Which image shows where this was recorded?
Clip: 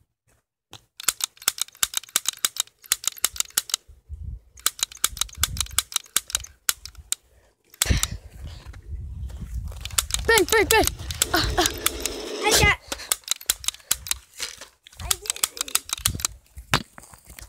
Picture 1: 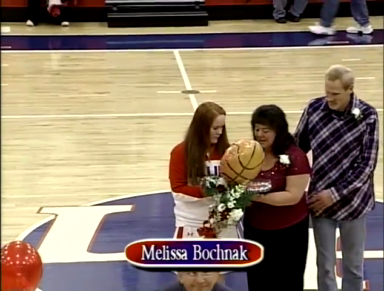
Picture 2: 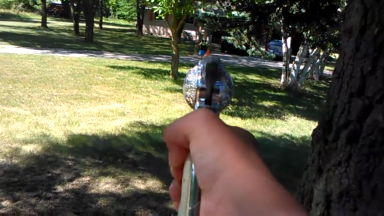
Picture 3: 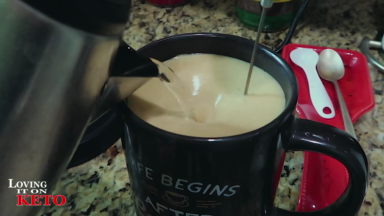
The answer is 2